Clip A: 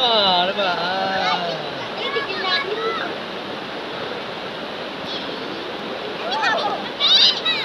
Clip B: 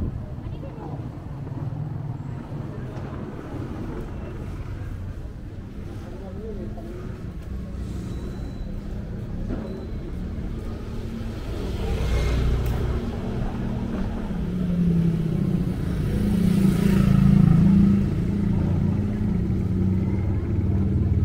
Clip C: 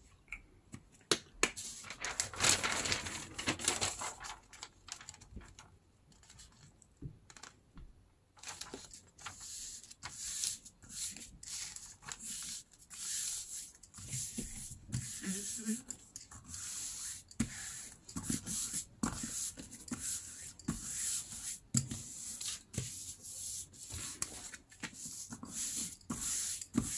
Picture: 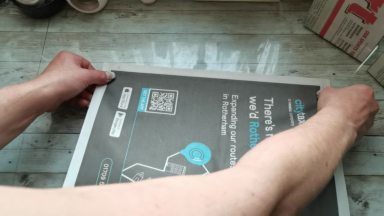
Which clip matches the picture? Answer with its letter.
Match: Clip C